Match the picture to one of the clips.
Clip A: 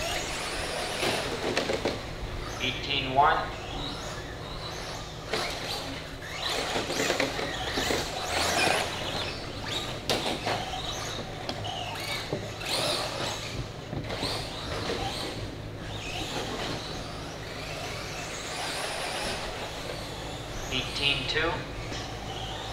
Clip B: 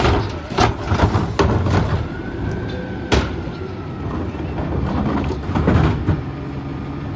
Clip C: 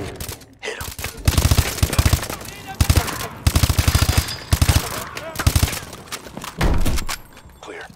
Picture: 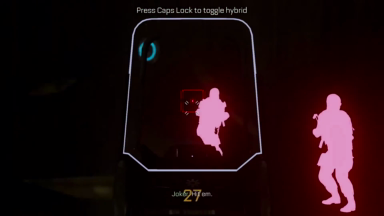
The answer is C